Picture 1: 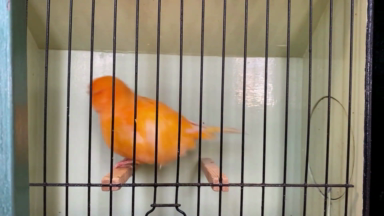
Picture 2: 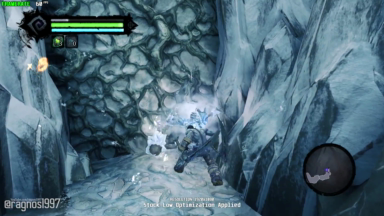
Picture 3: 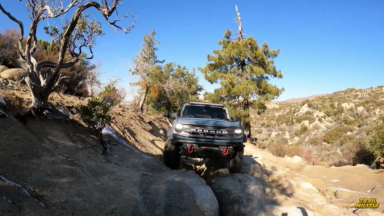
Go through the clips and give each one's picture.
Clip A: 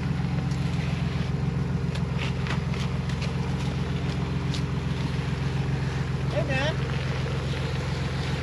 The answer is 3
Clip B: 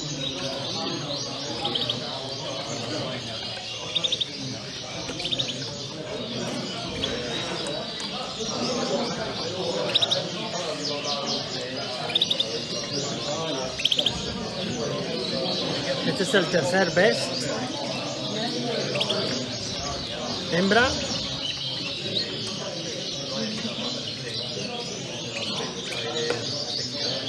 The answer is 1